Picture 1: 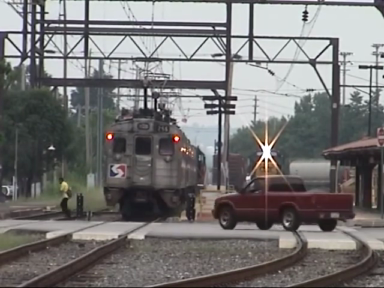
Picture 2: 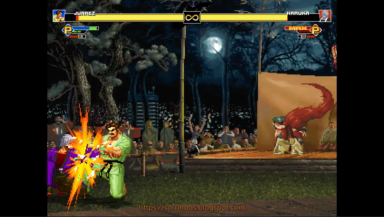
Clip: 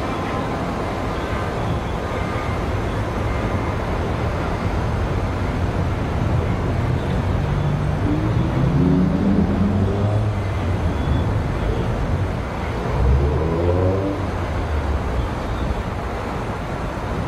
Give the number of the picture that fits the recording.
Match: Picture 1